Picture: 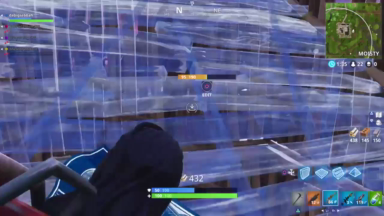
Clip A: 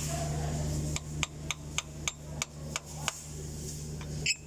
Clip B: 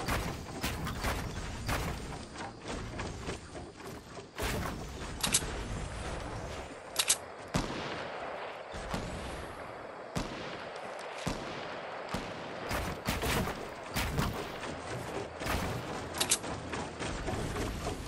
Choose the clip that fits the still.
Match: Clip B